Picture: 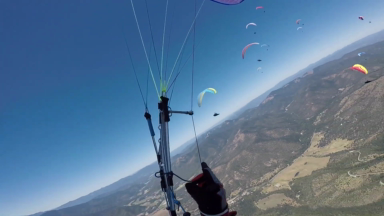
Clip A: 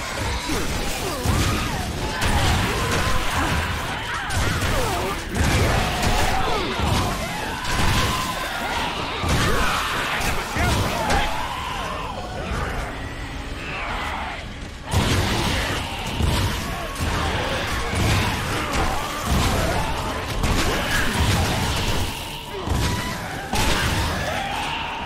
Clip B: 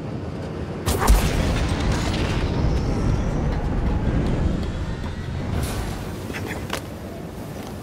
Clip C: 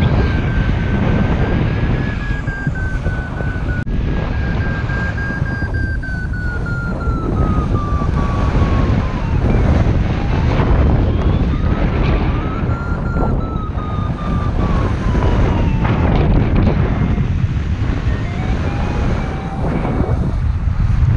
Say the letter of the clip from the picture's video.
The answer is C